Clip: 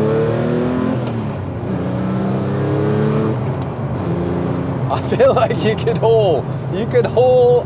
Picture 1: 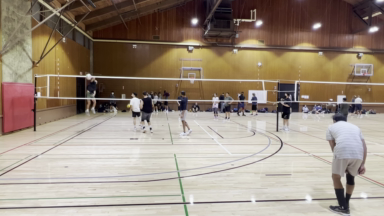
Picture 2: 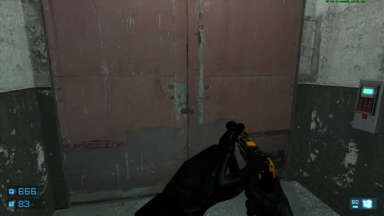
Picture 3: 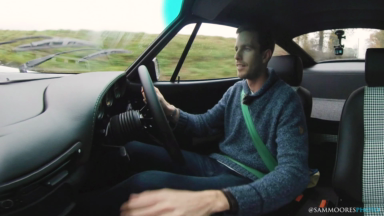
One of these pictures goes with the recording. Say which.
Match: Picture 3